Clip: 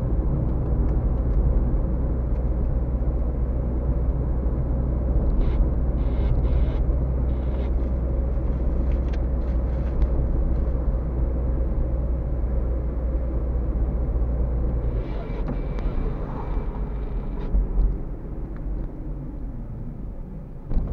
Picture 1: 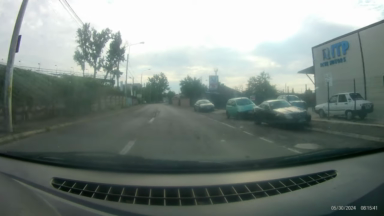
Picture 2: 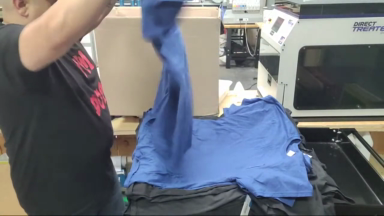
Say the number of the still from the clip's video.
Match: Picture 1